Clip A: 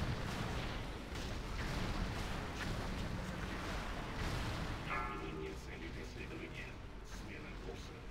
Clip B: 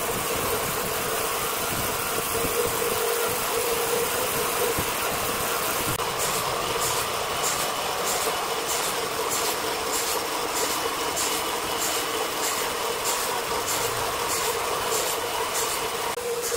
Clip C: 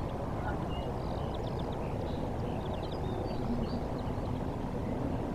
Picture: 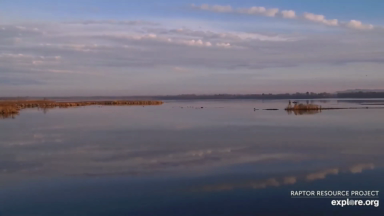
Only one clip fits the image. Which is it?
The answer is C